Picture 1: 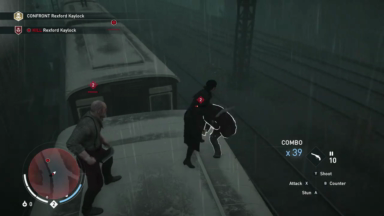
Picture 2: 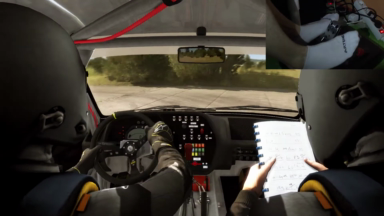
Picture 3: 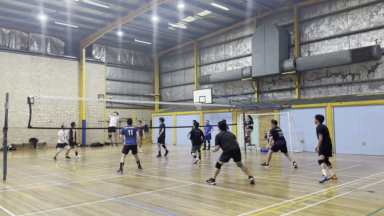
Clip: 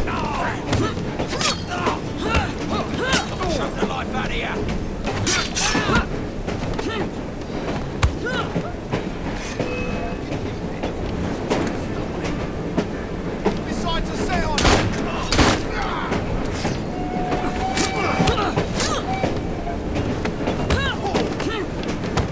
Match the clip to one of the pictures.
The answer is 1